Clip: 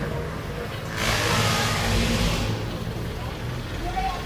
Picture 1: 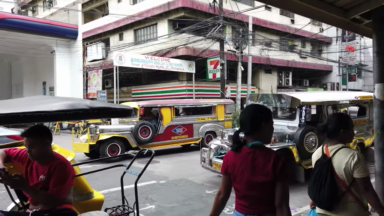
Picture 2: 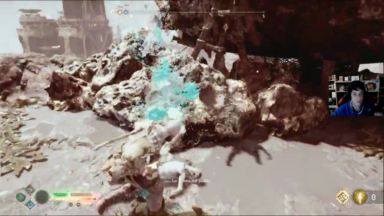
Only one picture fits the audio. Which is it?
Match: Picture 1